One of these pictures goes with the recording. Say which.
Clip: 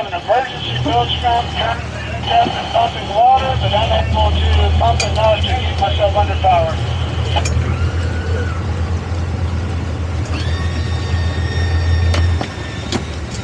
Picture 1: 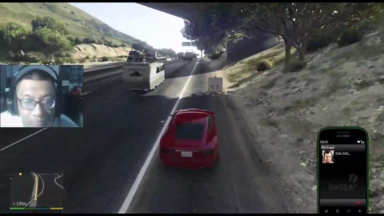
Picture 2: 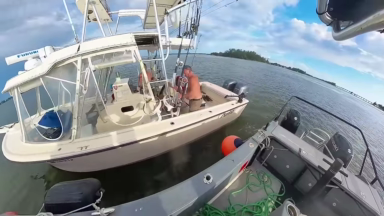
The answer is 2